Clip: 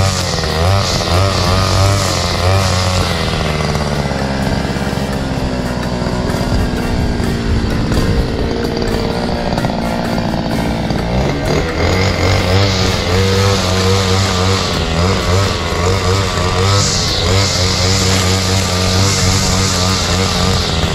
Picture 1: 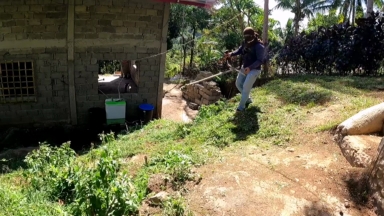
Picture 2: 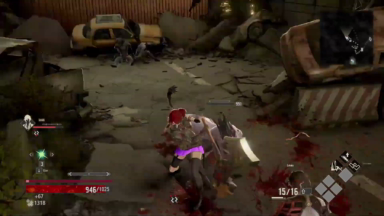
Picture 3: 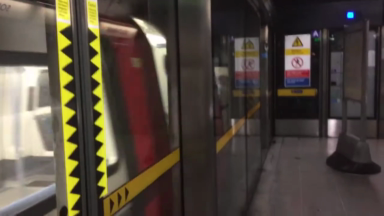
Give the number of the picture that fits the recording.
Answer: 1